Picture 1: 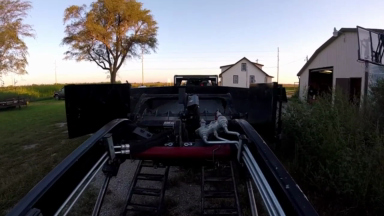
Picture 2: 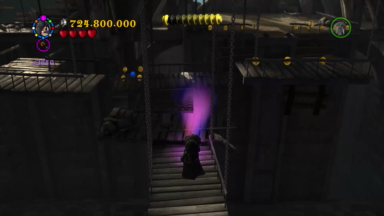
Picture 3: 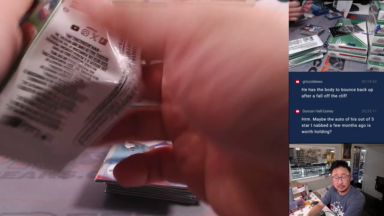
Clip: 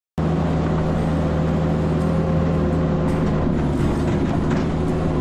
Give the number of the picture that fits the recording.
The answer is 1